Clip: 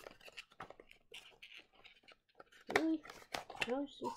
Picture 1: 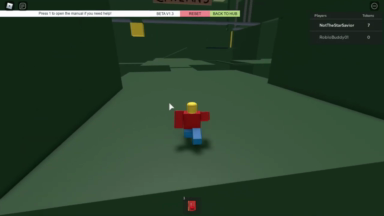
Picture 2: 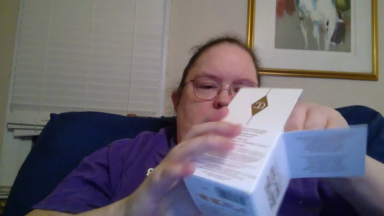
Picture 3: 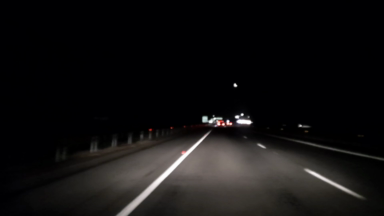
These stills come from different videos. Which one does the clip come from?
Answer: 2